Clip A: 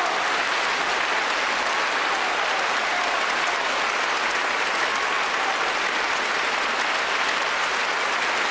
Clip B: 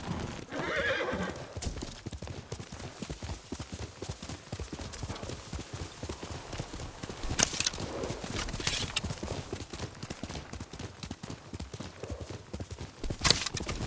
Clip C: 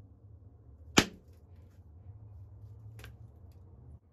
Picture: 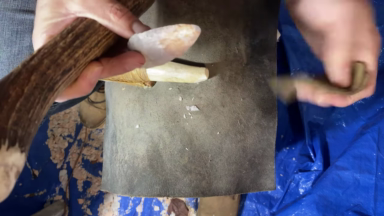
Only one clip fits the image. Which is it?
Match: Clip C